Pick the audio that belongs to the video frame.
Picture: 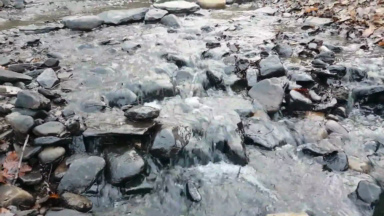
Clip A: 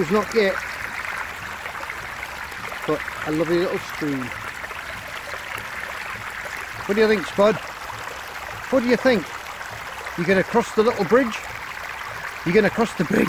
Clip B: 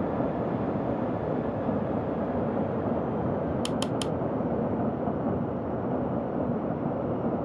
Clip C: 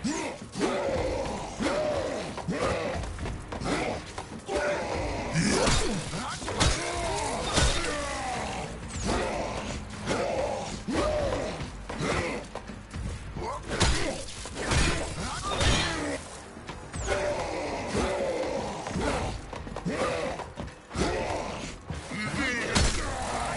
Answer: A